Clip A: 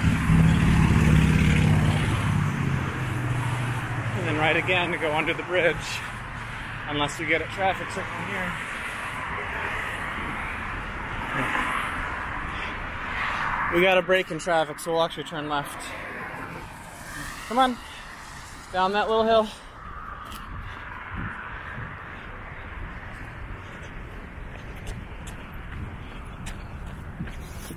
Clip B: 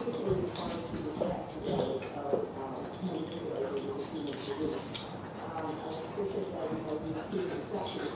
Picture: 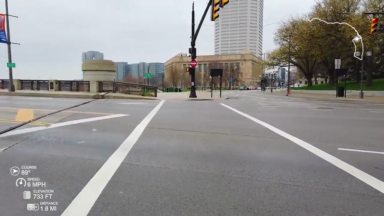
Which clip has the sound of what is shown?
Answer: A